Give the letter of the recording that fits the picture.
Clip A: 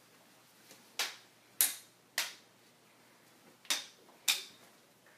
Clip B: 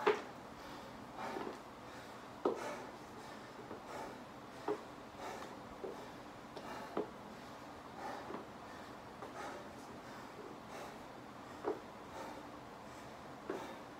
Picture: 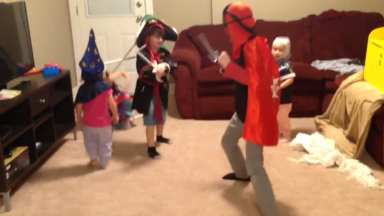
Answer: A